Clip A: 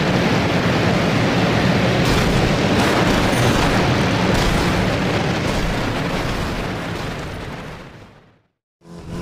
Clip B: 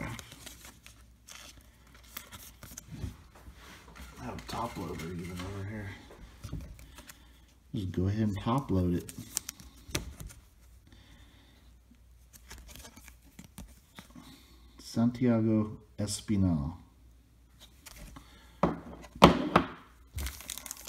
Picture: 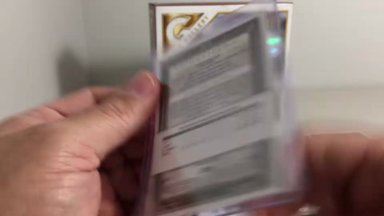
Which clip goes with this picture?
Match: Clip B